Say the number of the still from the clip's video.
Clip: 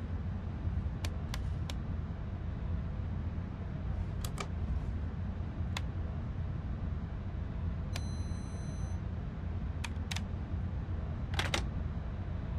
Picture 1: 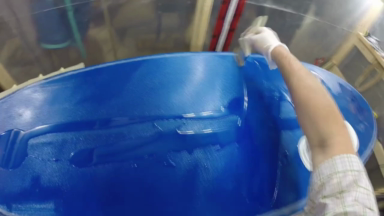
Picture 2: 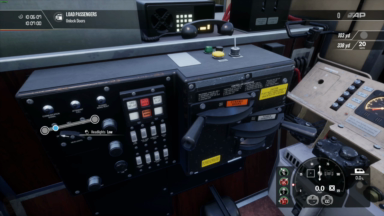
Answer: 2